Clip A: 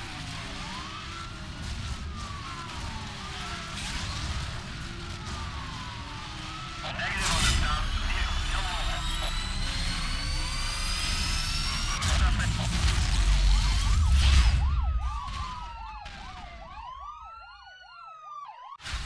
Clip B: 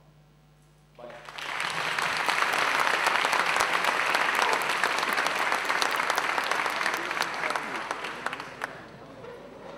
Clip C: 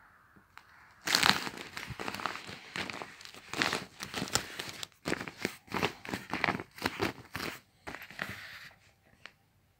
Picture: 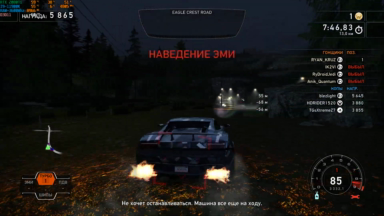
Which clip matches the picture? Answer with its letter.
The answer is A